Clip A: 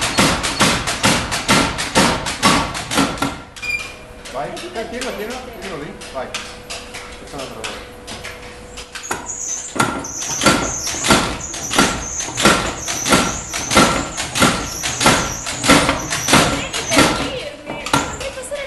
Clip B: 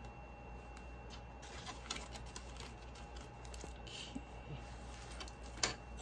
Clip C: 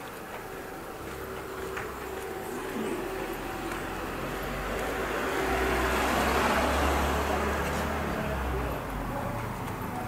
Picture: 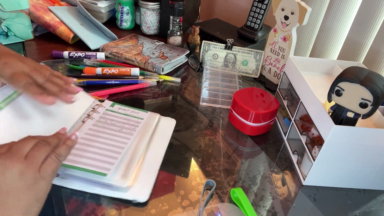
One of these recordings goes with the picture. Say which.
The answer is B